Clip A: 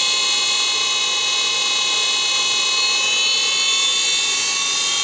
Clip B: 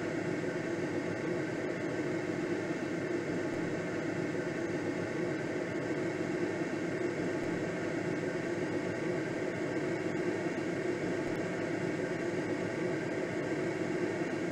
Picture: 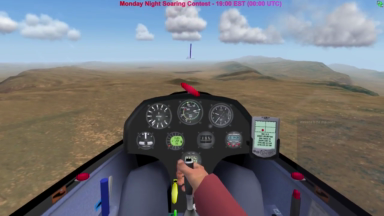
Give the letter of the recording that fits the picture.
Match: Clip B